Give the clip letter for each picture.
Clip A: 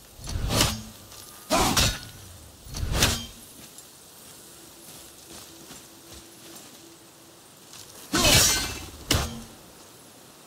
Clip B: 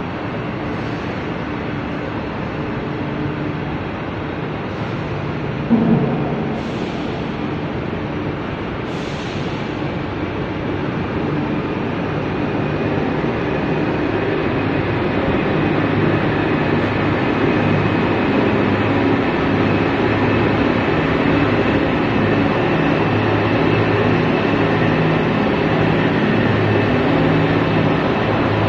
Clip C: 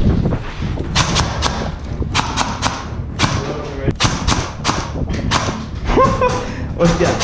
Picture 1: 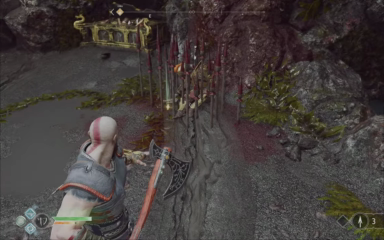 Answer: A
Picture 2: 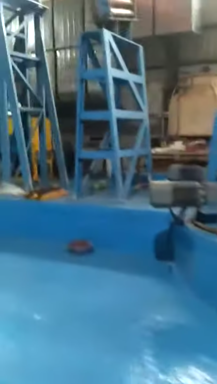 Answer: B